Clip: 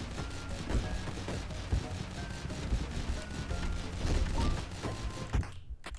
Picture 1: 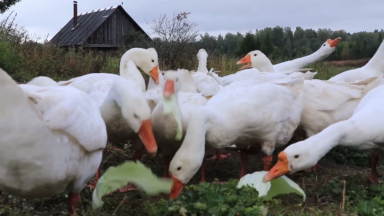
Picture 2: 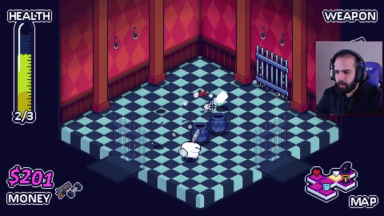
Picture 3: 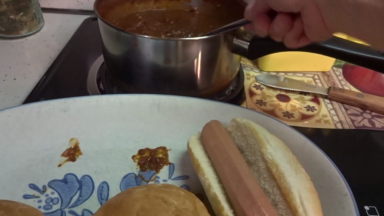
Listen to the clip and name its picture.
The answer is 2